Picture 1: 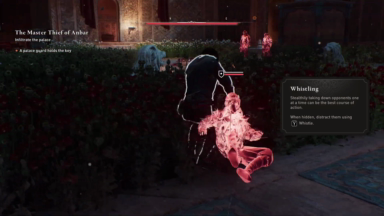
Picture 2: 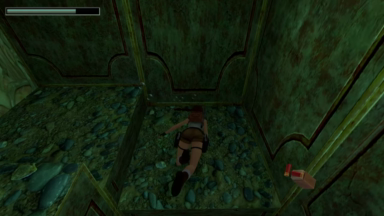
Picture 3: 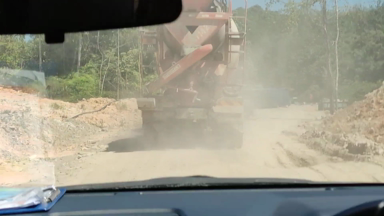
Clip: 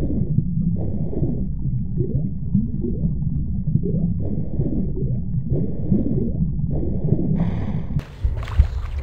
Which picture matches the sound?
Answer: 2